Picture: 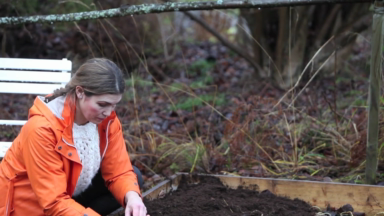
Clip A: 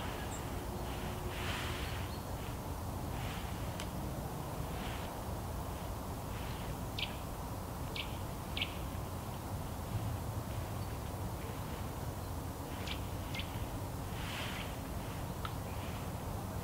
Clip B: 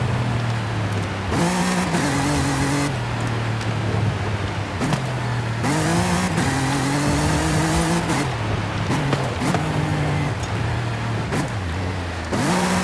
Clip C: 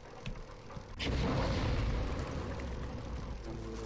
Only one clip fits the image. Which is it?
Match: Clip A